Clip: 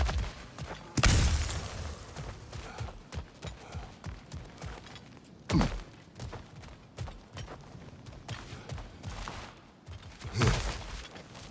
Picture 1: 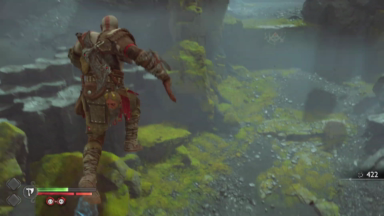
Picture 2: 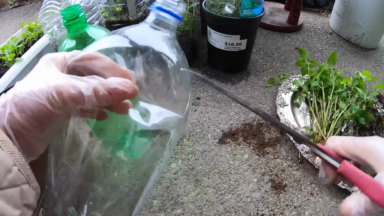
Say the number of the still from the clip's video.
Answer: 1